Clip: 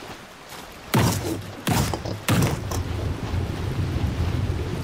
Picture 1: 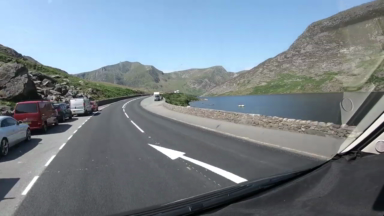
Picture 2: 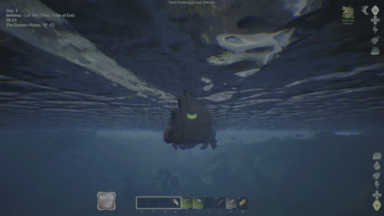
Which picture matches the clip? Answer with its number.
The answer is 2